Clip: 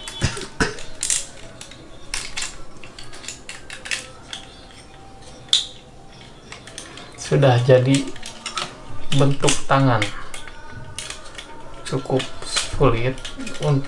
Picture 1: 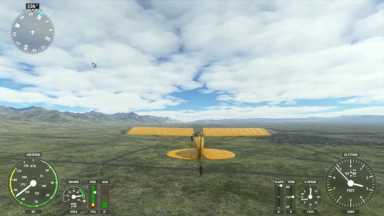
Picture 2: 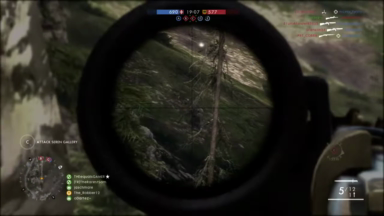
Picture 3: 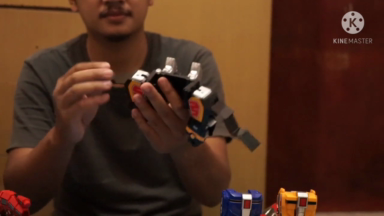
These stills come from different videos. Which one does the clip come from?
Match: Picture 3